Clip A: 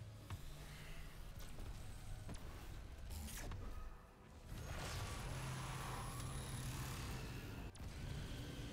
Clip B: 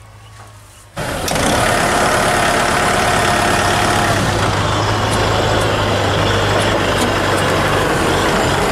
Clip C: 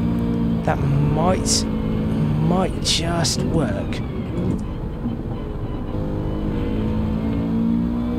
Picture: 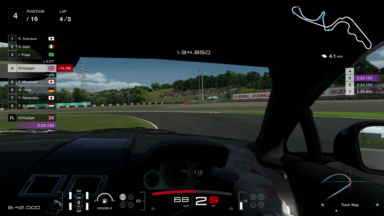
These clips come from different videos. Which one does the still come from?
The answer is C